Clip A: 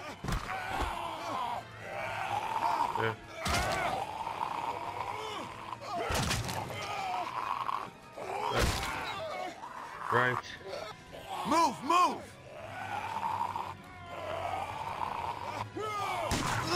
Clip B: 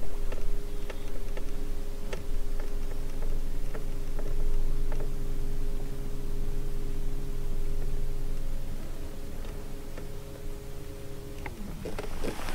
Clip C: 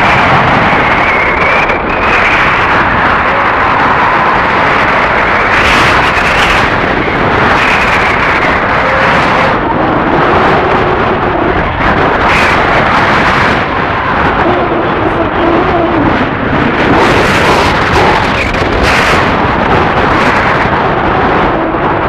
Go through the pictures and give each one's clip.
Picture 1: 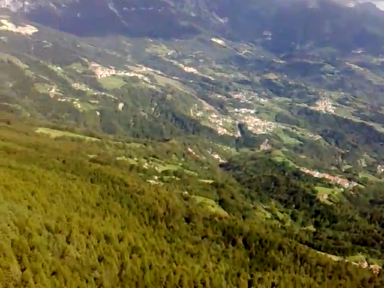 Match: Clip C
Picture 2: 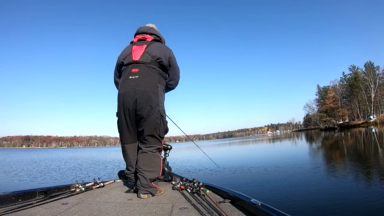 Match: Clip B